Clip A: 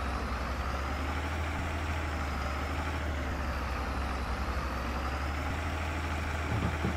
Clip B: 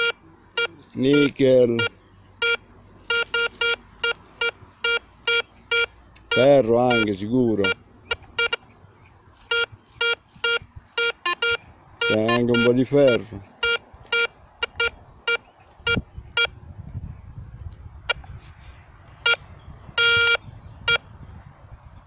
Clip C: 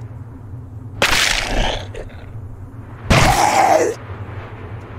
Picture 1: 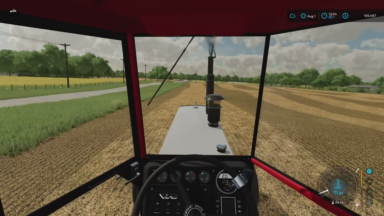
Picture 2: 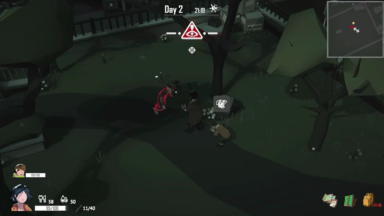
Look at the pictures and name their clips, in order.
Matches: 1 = A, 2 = C